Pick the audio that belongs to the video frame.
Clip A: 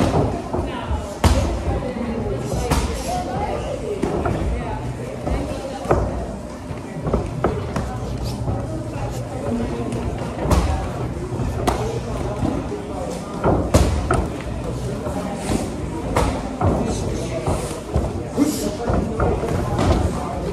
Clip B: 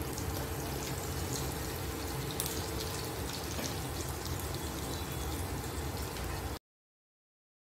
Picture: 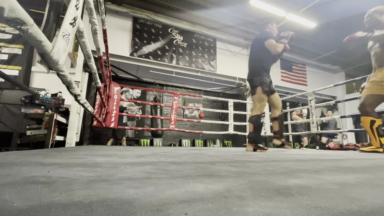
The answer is A